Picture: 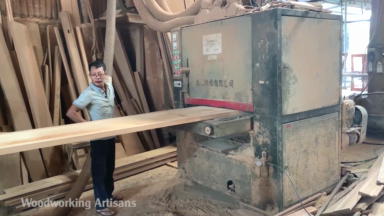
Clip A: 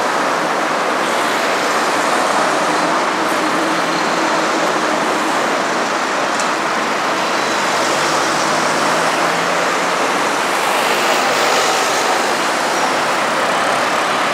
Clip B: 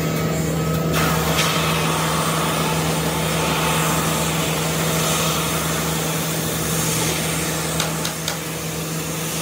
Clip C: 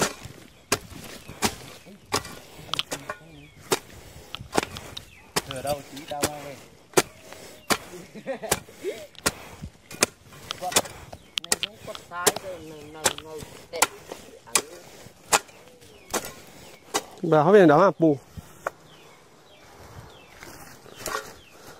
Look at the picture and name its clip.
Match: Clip B